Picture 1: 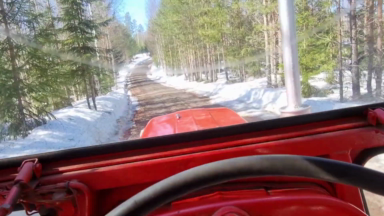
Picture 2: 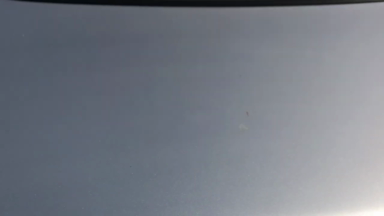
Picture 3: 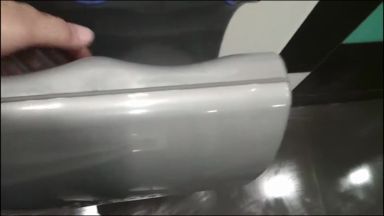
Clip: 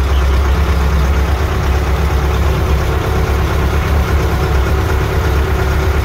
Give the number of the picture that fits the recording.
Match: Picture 1